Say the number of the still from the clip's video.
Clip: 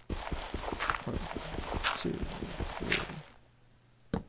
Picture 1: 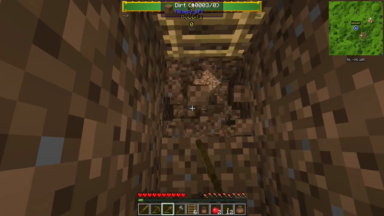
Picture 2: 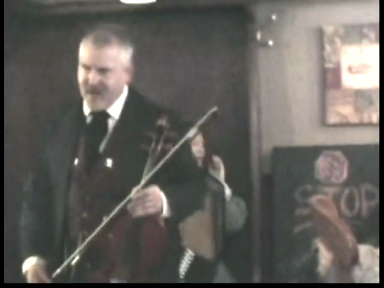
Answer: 1